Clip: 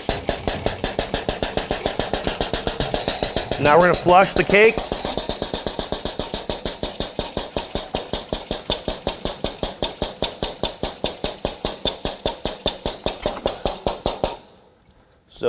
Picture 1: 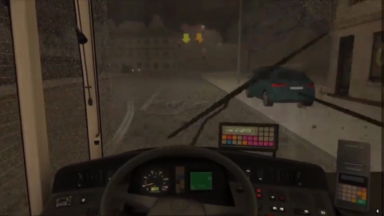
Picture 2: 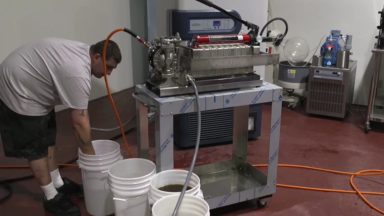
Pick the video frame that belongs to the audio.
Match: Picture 2